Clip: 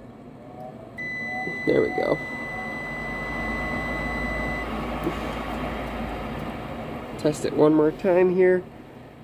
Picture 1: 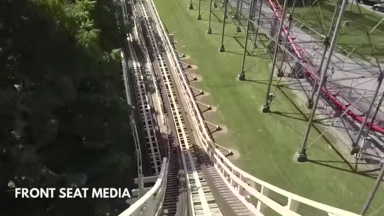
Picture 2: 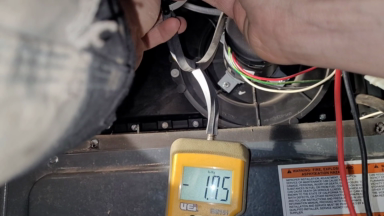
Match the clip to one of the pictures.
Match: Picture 2